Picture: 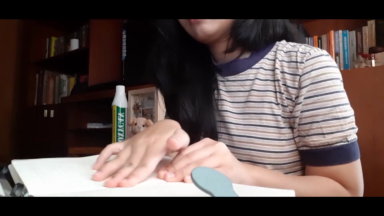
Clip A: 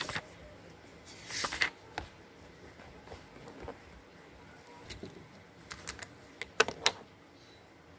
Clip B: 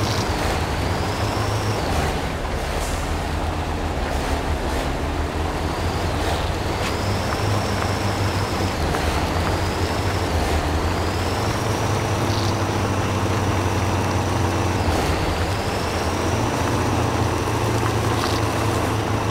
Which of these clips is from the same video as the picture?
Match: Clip A